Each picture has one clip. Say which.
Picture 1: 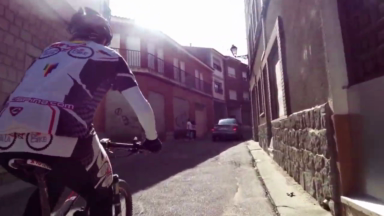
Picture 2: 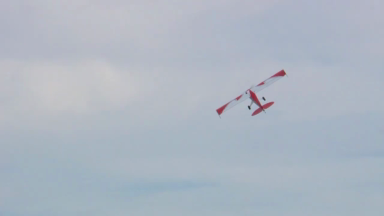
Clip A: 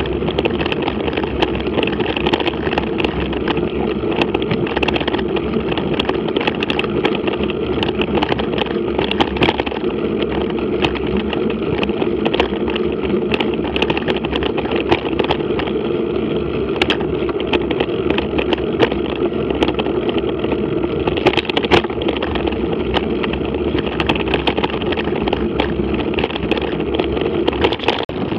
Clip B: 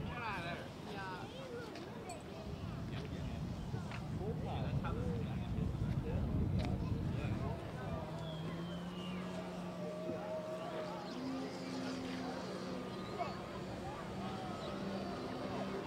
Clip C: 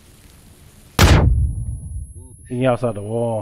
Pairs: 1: A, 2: B